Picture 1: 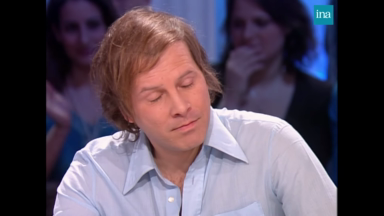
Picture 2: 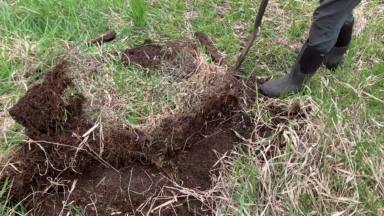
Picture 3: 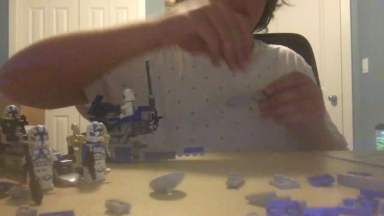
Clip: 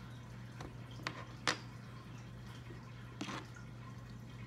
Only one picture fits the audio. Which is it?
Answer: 3